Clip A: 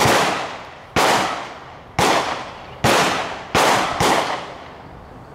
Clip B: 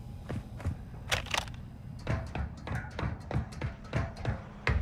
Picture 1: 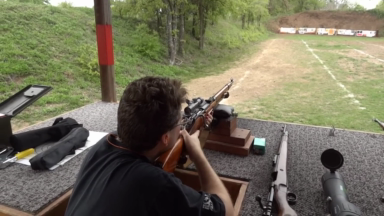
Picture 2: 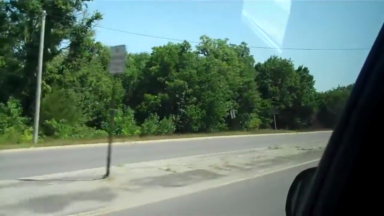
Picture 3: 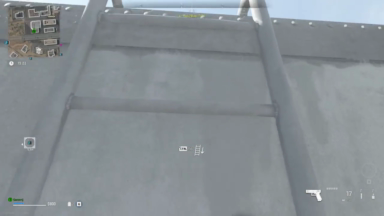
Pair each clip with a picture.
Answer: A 1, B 3